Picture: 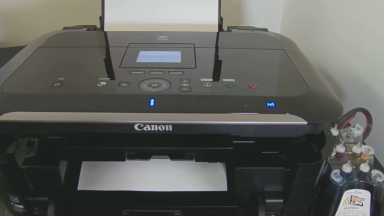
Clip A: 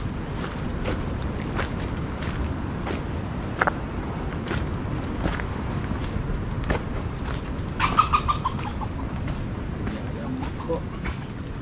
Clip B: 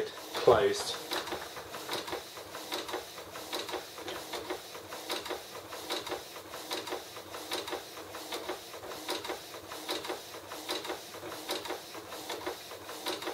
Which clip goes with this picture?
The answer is B